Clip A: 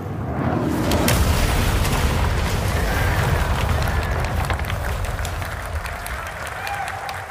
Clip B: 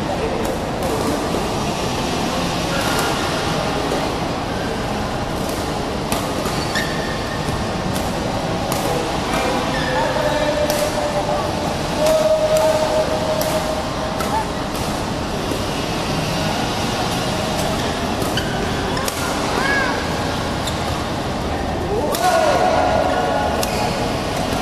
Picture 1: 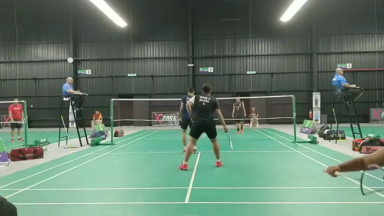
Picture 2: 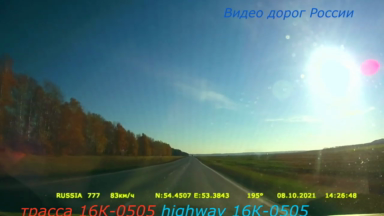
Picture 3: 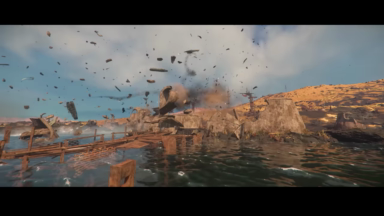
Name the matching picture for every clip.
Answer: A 3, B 1